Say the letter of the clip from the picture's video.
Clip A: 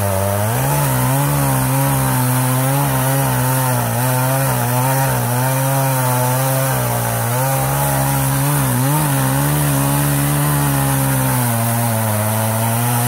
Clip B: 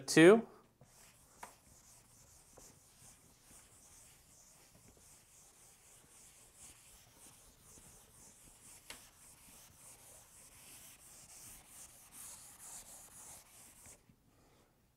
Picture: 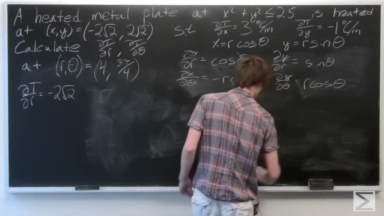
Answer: B